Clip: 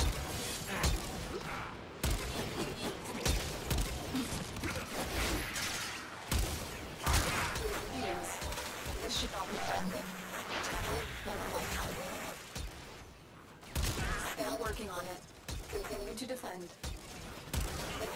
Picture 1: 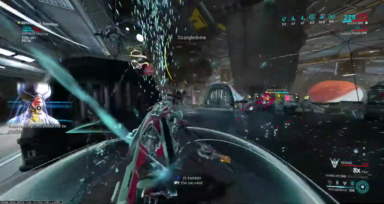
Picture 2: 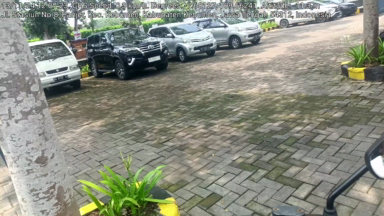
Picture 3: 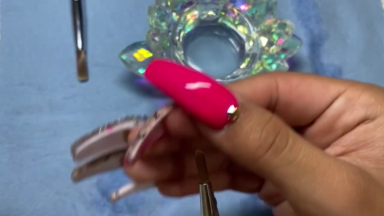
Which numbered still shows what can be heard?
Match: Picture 1